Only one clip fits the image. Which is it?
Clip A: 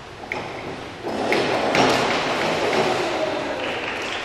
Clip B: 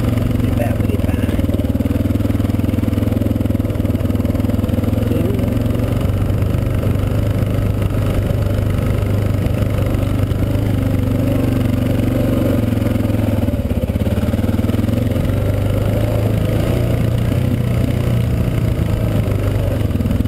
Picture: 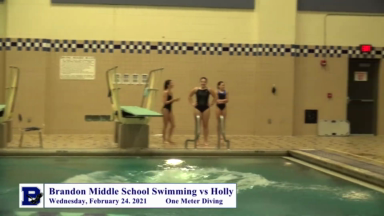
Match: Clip A